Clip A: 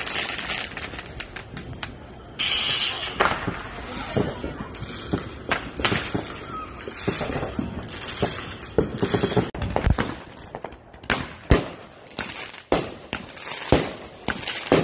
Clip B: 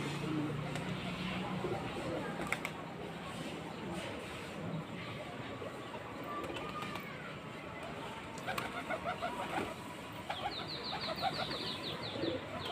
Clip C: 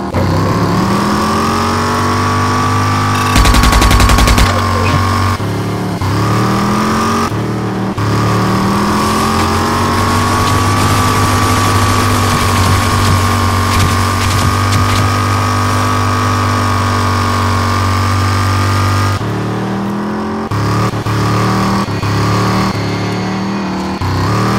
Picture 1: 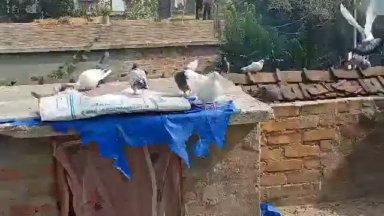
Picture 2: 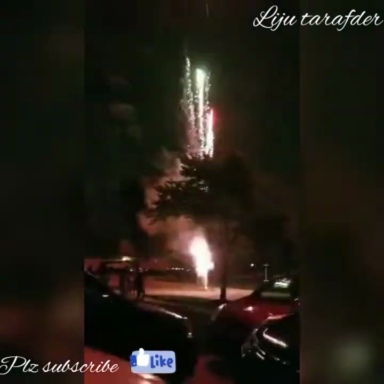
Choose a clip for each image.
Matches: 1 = B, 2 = A